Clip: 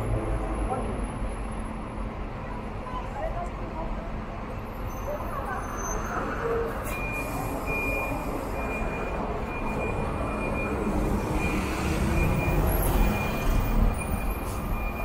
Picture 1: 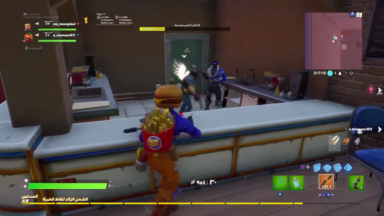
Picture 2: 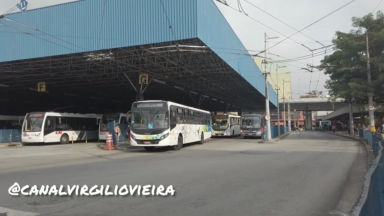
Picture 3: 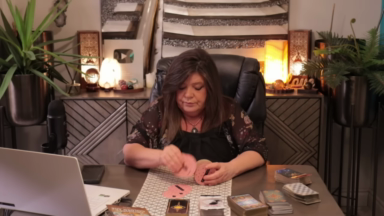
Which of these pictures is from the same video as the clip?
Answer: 2